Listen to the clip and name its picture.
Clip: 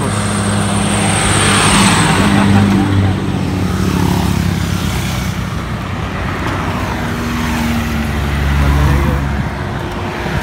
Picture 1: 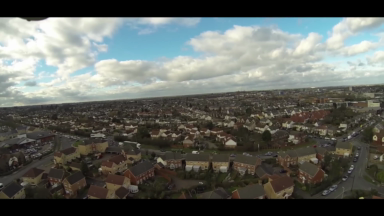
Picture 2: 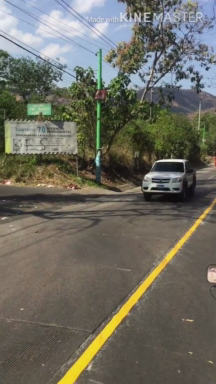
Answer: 2